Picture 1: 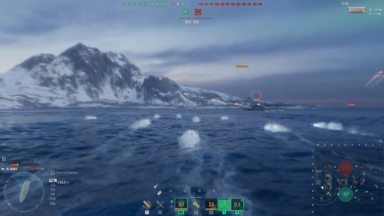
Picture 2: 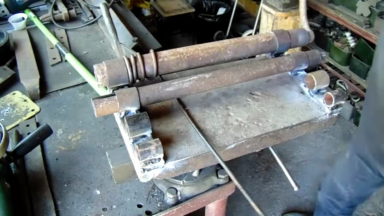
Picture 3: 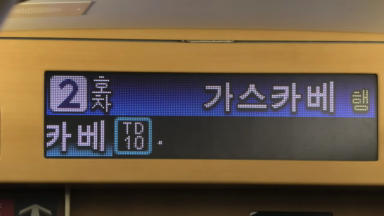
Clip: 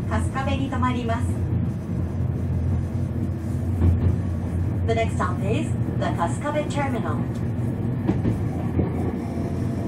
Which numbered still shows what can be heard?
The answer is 3